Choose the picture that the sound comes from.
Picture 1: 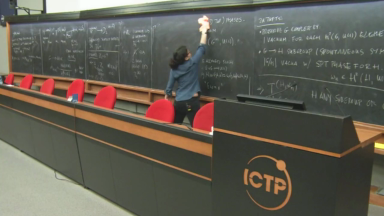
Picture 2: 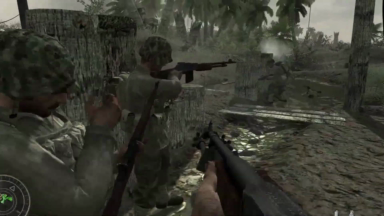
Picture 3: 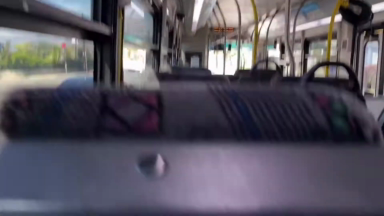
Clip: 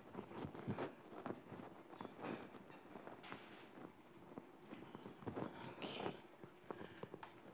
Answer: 1